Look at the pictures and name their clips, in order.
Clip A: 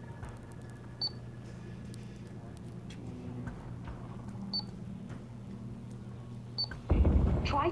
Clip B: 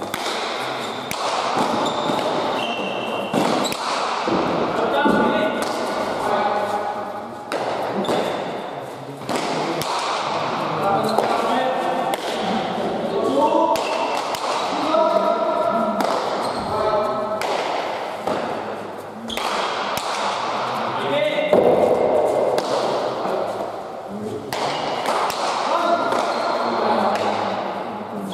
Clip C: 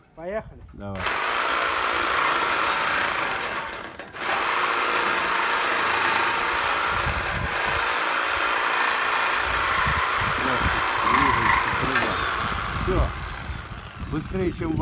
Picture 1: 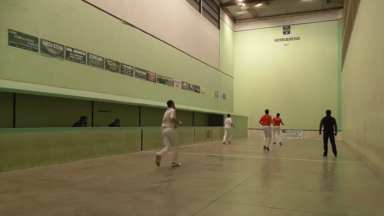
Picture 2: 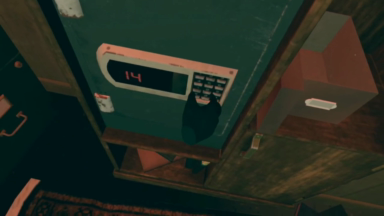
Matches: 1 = B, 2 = A